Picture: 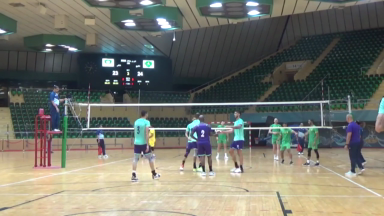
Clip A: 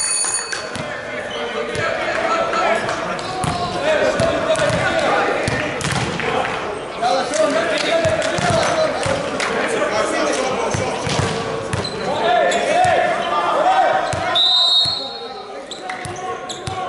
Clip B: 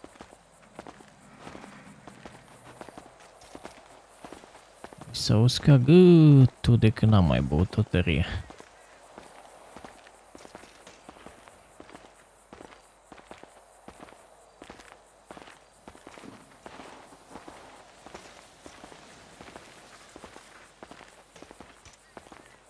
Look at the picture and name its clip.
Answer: A